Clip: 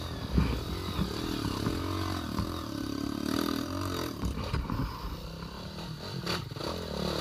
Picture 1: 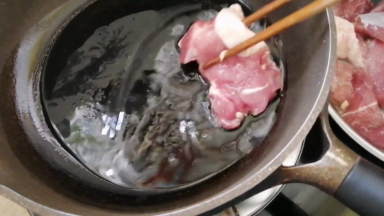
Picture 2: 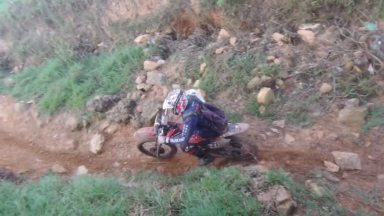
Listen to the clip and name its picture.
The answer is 2